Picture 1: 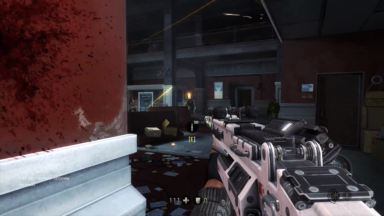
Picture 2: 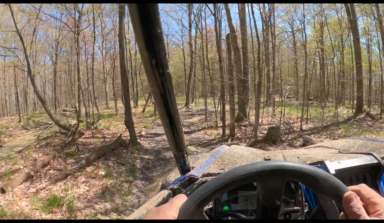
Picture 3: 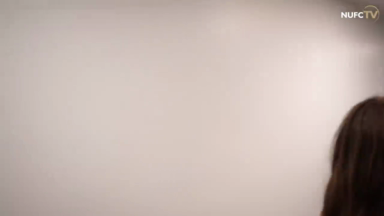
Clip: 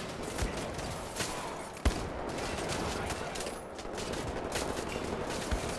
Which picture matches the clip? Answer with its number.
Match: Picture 1